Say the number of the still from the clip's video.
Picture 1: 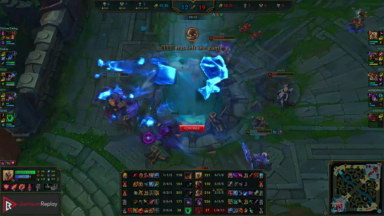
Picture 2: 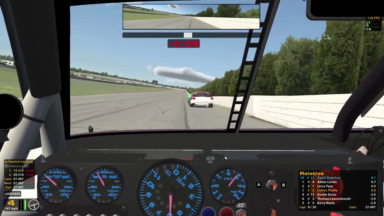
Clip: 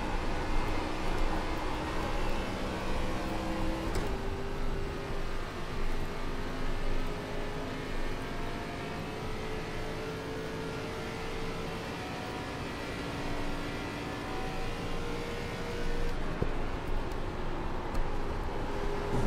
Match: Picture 2